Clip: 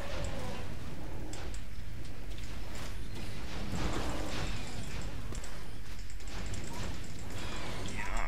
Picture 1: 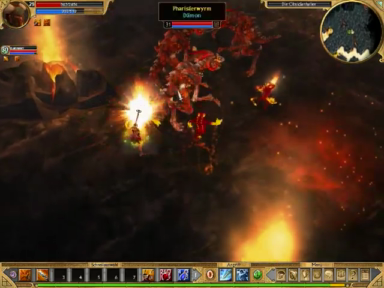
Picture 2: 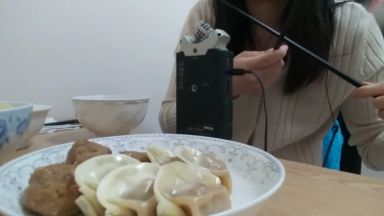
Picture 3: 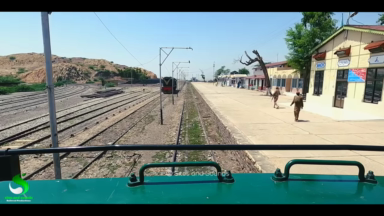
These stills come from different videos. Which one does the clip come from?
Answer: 1